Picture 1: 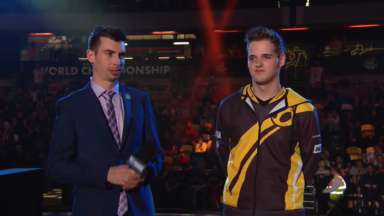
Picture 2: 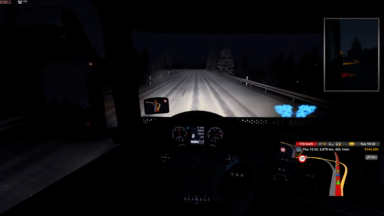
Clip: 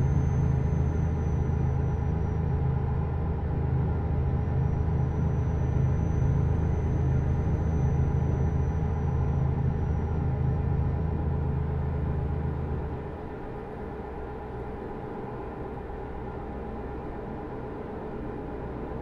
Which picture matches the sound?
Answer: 2